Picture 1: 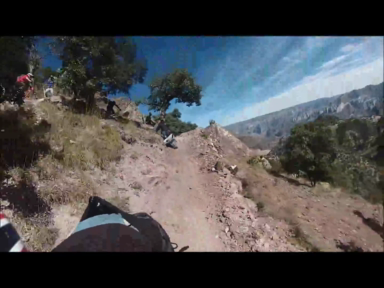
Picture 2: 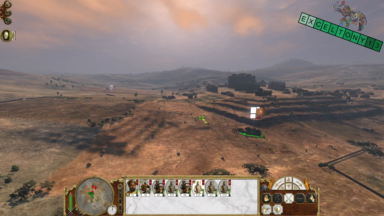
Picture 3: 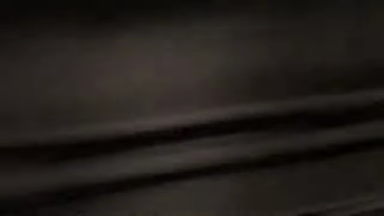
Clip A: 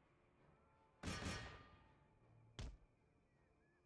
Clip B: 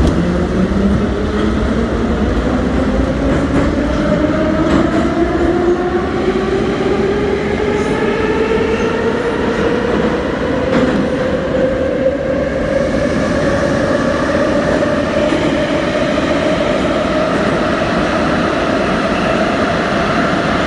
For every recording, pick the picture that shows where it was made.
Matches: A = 2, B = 3